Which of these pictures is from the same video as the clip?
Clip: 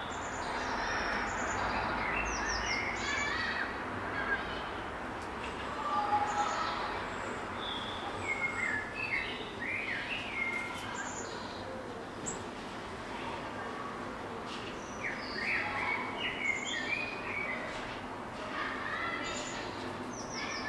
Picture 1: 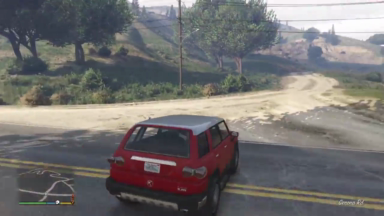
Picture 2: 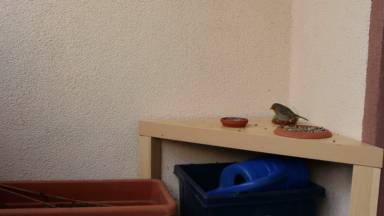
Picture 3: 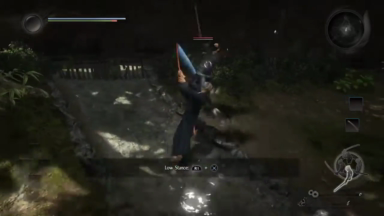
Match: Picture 2